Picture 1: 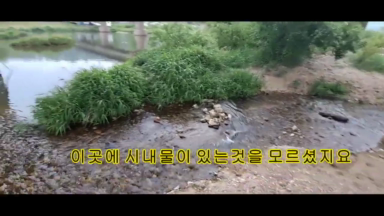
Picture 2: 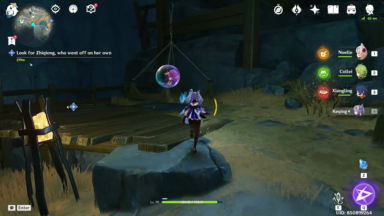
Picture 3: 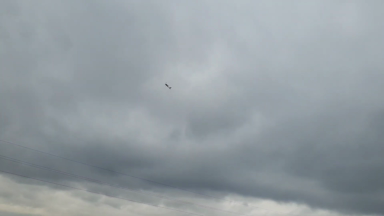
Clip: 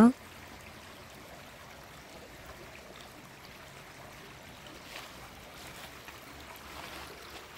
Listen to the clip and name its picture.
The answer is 1